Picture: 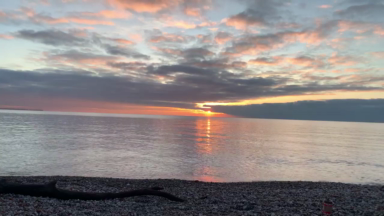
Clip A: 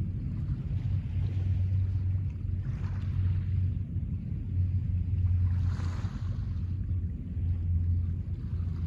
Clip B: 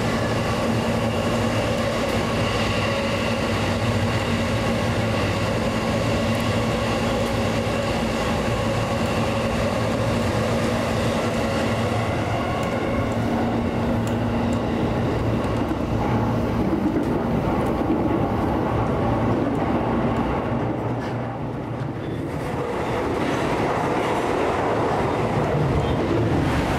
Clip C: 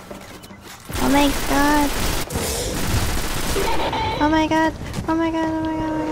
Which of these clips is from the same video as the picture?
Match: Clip A